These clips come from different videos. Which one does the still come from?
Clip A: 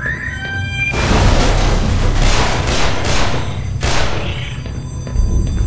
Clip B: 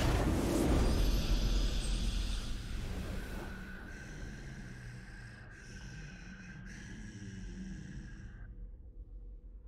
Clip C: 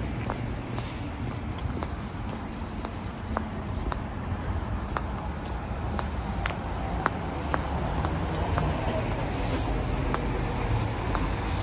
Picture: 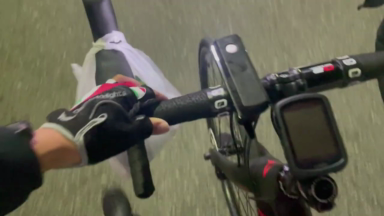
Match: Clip C